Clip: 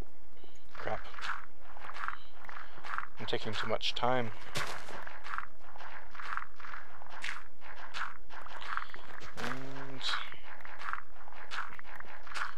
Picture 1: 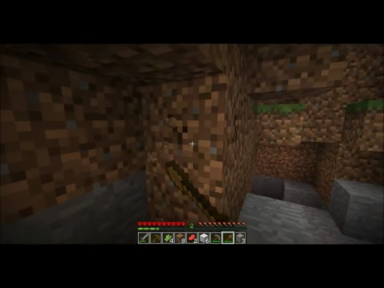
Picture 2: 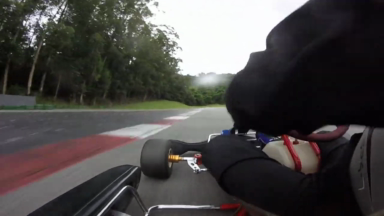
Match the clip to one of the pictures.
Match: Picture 1